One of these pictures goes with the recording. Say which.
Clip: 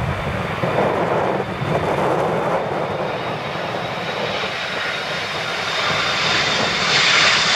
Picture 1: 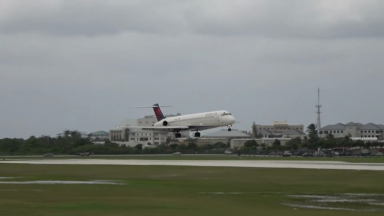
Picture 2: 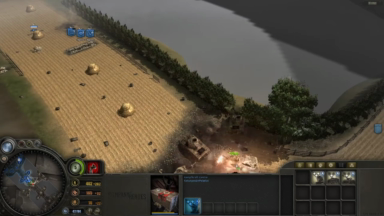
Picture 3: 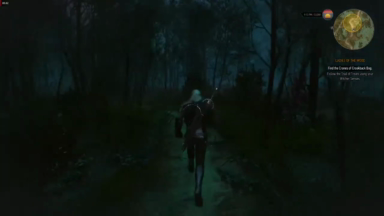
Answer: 1